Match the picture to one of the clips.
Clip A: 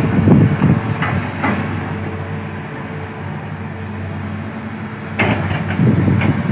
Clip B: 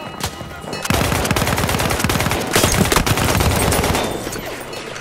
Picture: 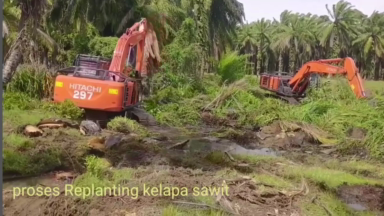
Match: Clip A